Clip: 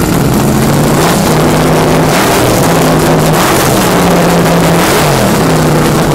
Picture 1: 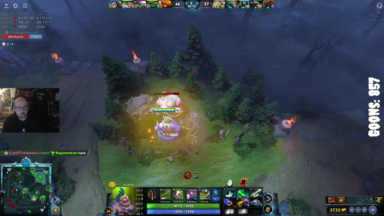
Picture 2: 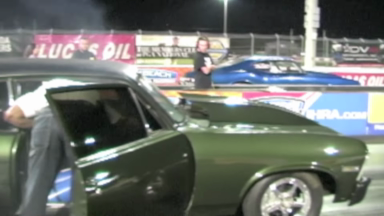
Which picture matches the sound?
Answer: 2